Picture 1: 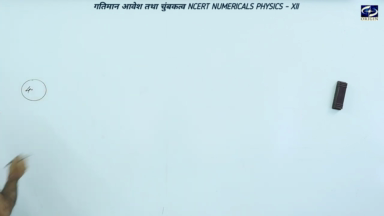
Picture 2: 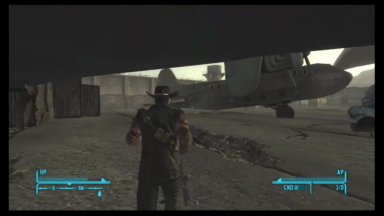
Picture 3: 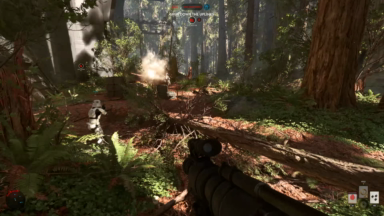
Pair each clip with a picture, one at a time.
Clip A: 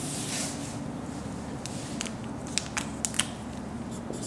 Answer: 1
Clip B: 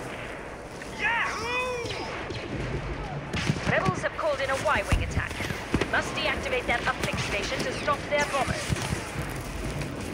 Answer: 3